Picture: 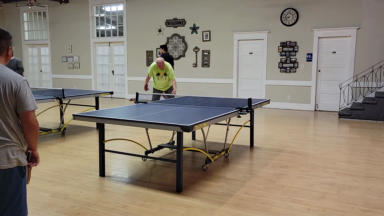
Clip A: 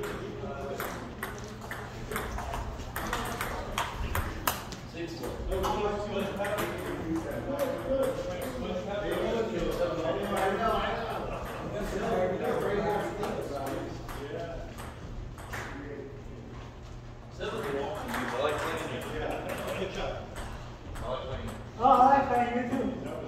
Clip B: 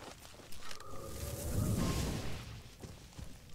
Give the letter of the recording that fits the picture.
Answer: A